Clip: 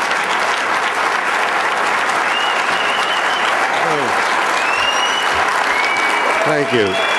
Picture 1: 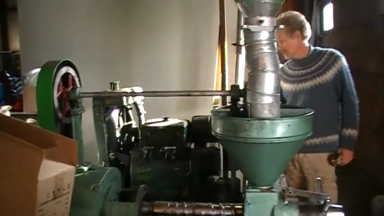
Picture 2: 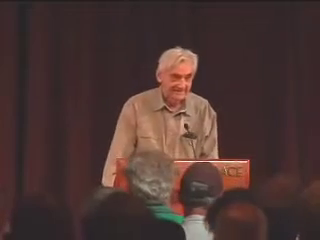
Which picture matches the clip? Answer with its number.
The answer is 2